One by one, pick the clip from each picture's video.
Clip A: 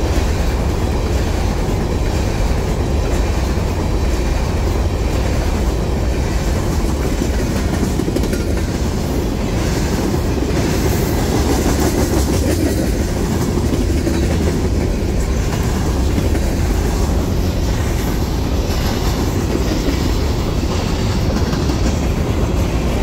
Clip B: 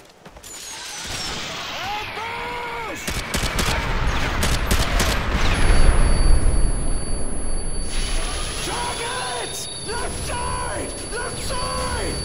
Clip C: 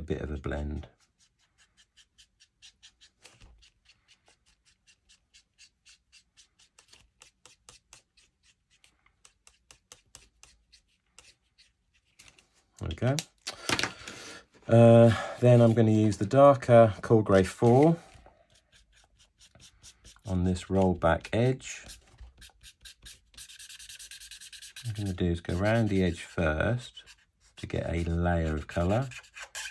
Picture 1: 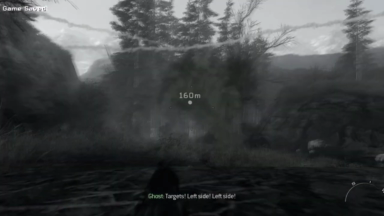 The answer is B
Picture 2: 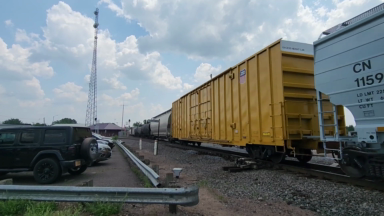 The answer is A